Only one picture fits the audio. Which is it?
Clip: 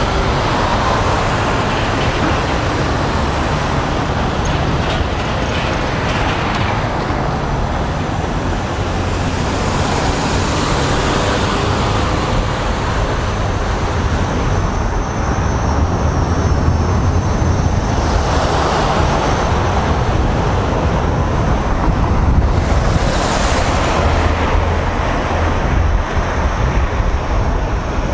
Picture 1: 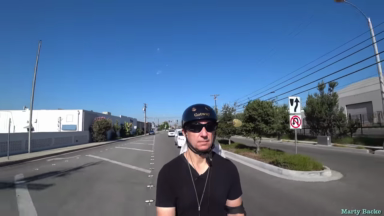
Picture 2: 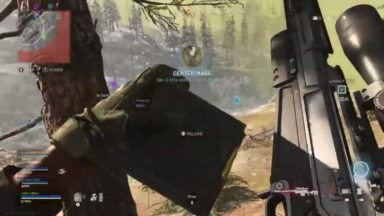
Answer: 1